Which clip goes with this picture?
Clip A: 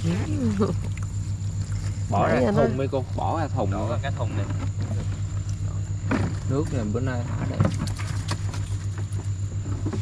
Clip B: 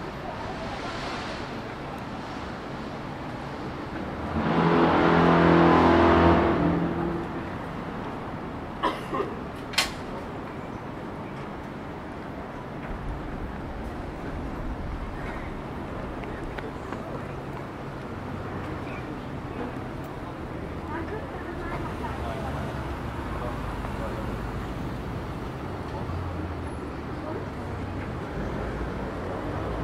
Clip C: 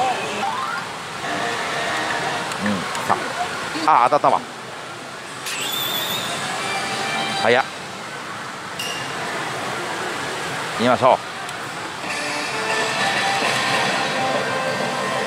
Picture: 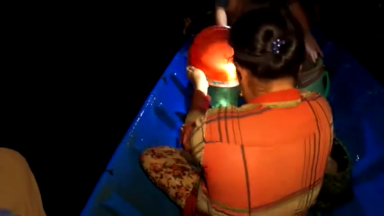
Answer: A